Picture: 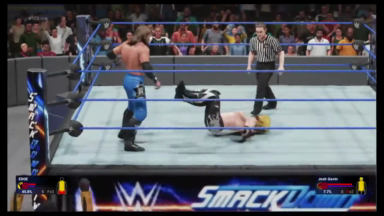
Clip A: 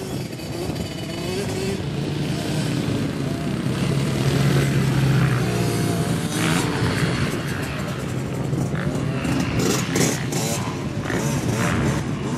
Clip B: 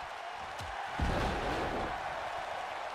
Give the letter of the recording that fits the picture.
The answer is B